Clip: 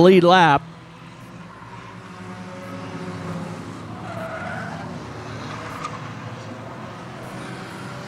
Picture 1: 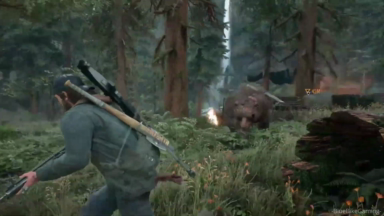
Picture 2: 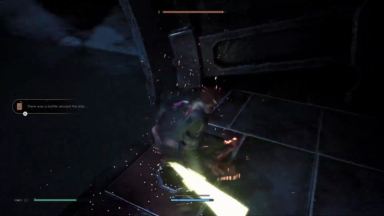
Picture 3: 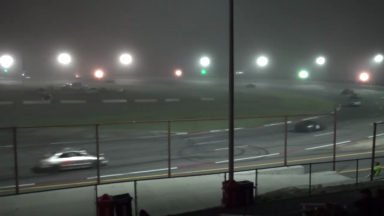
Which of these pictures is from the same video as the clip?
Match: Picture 3